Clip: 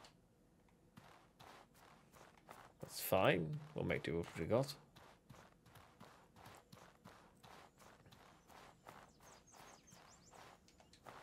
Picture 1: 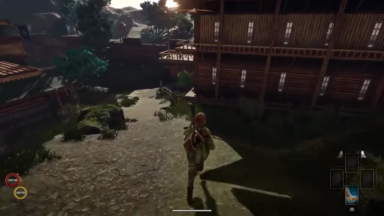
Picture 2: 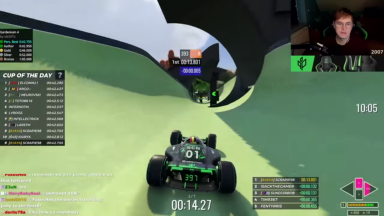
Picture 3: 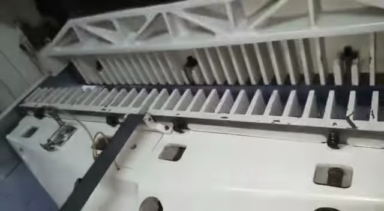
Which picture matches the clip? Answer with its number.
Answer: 1